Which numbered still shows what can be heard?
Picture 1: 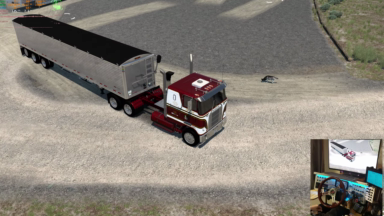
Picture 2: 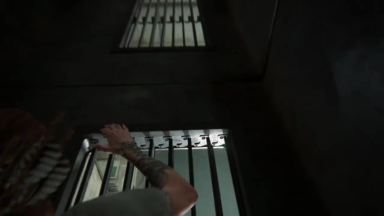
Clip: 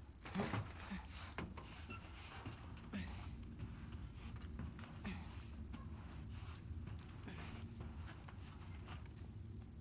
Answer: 2